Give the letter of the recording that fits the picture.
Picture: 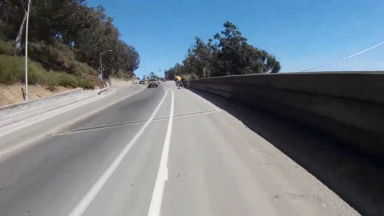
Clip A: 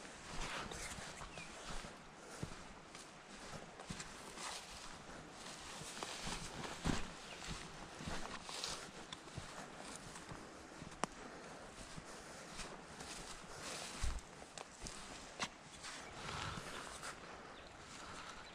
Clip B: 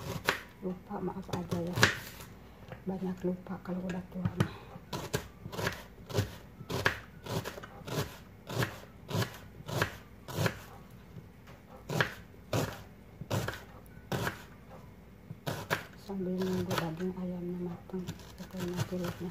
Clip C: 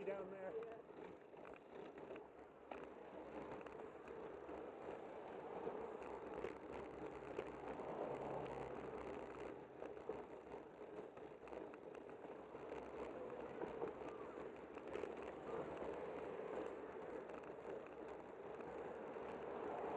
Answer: C